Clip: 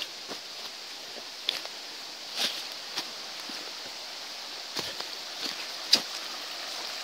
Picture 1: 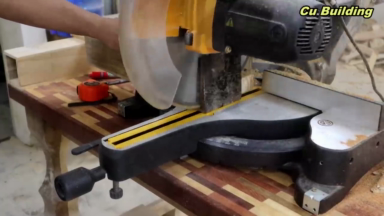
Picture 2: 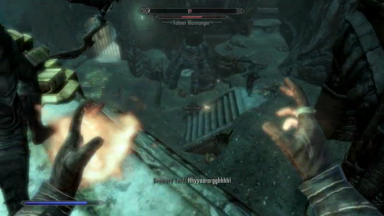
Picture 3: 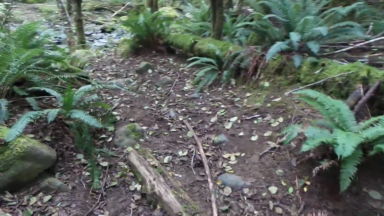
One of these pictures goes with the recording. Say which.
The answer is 3